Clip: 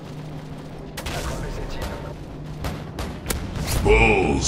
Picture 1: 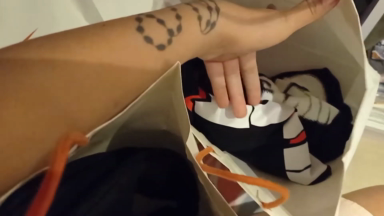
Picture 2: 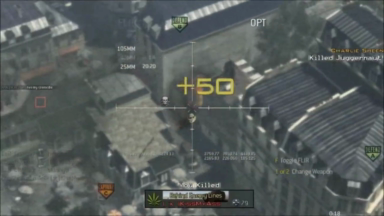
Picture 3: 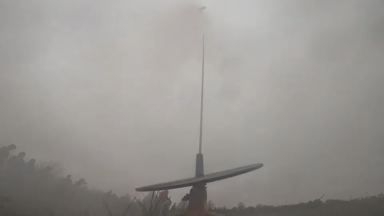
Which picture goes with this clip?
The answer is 2